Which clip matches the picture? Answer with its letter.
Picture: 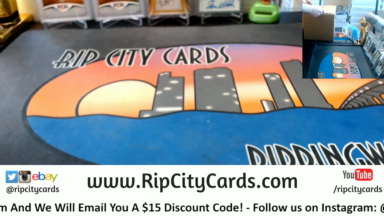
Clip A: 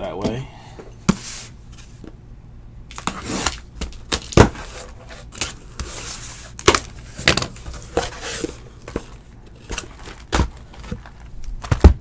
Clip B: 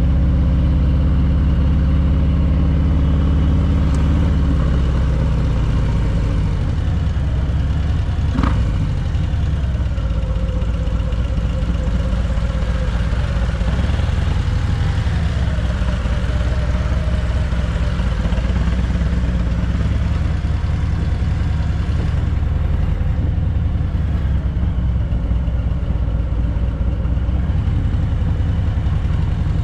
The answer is A